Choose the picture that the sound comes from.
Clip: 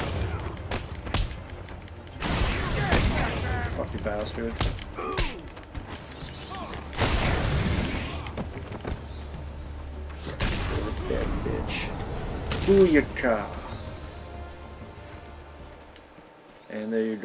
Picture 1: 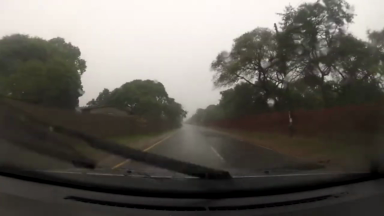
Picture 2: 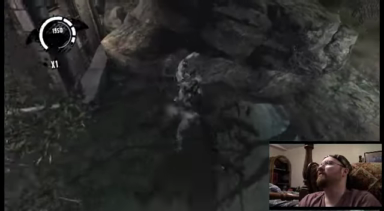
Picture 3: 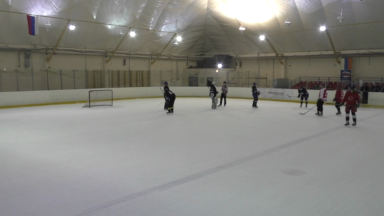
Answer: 2